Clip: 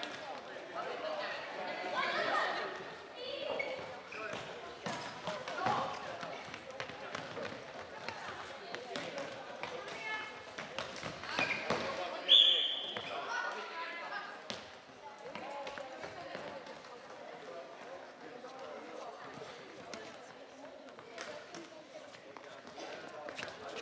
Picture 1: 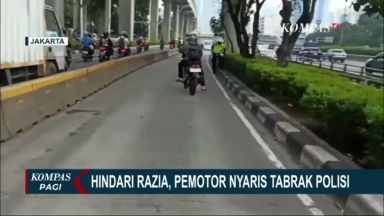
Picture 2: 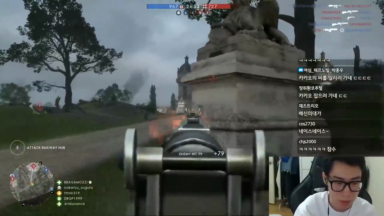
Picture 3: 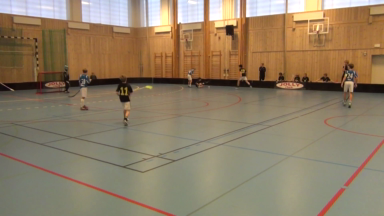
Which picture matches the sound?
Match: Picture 3